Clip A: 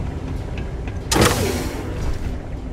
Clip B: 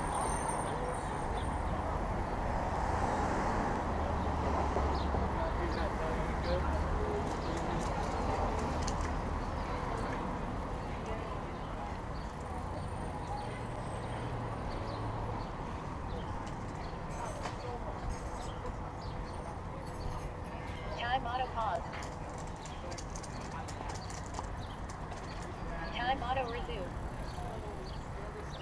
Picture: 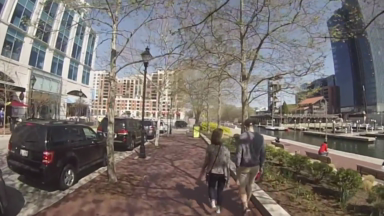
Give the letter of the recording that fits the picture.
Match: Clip B